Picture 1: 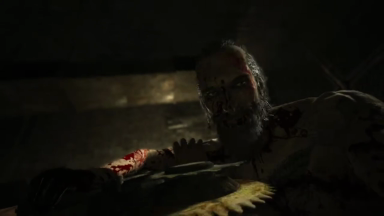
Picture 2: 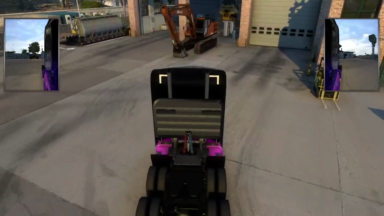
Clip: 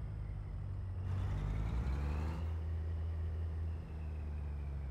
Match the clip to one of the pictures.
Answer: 2